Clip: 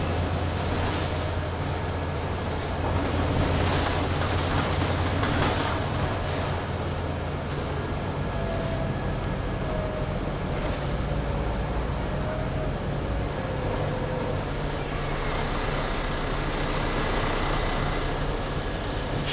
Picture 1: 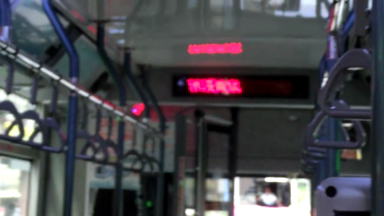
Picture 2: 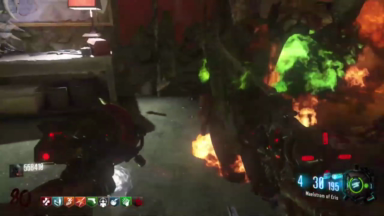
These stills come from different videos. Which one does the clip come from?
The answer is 1